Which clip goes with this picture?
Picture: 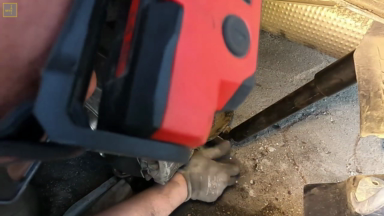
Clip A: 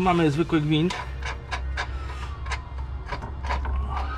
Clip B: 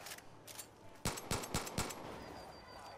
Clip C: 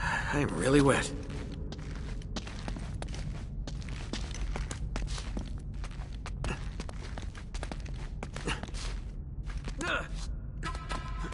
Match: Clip A